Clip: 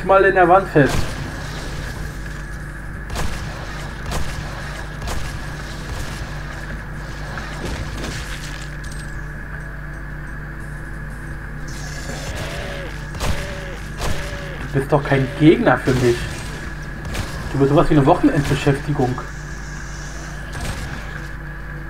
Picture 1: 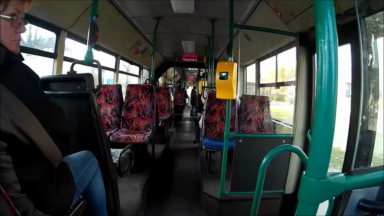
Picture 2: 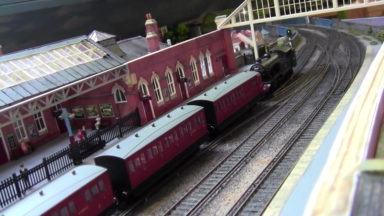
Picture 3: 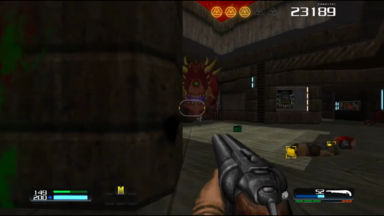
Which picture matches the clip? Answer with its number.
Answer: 3